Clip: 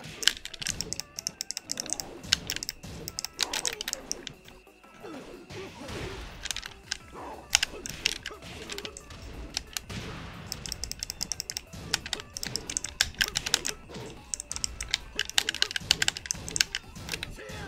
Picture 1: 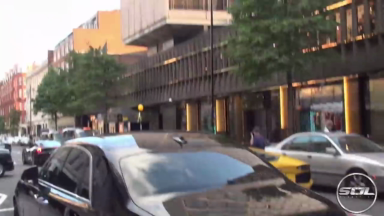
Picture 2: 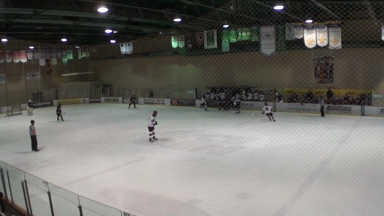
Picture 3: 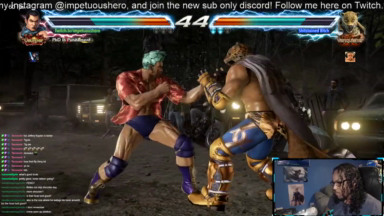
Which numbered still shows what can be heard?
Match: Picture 3